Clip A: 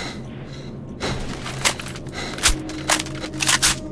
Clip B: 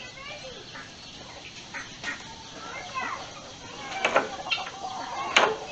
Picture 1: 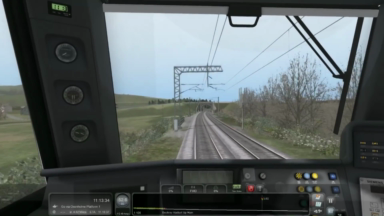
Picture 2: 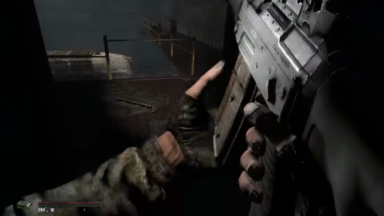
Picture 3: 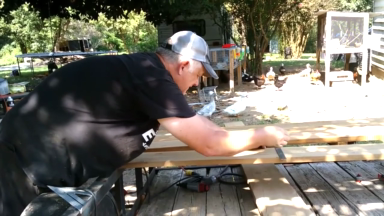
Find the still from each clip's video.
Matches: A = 2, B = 3